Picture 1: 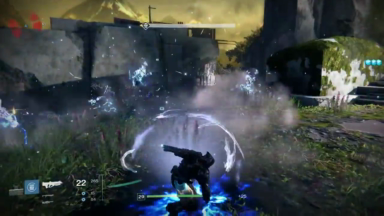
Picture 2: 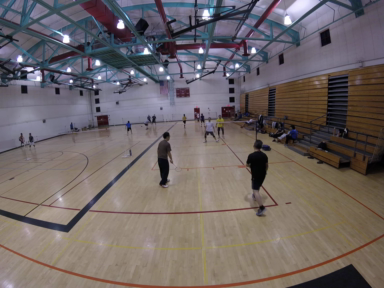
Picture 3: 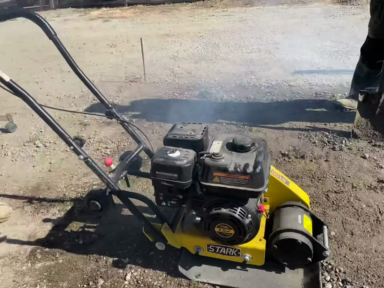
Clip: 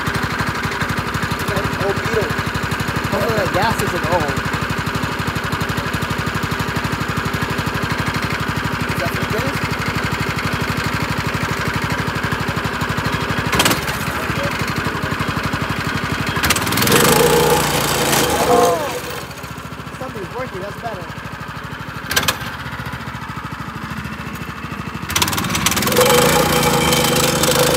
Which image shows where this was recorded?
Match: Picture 3